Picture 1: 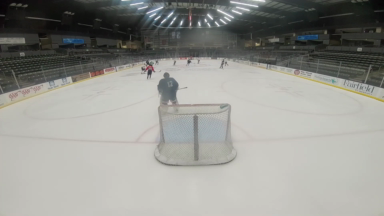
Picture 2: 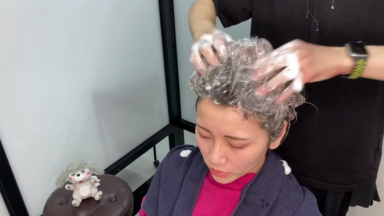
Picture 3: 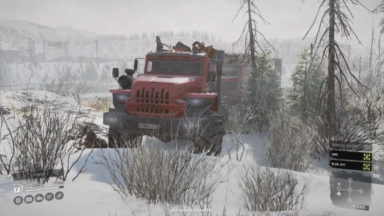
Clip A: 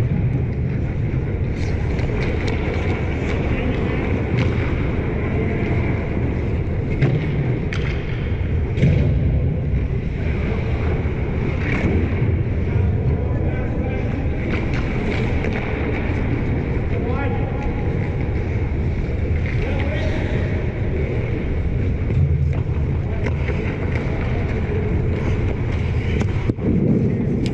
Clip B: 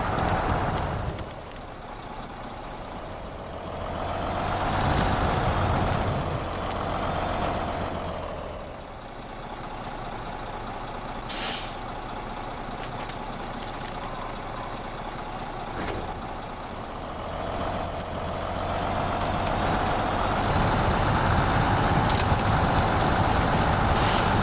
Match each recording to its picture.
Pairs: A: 1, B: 3